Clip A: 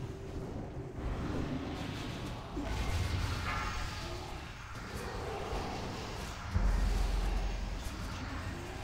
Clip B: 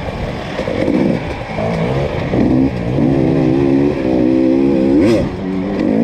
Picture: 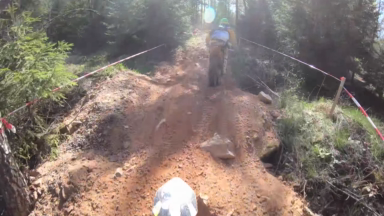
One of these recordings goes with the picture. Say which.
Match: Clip B